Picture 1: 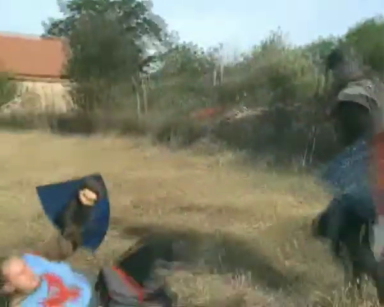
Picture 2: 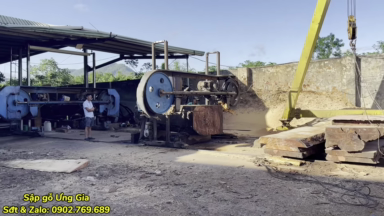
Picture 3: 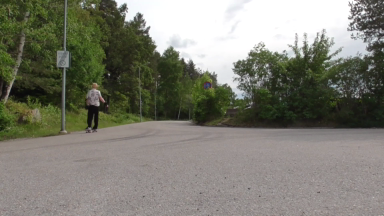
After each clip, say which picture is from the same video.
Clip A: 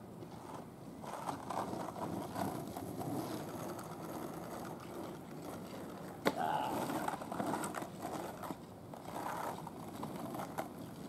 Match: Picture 3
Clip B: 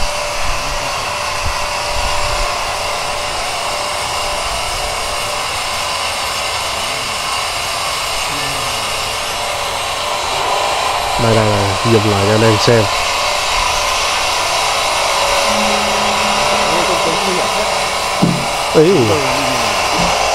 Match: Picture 2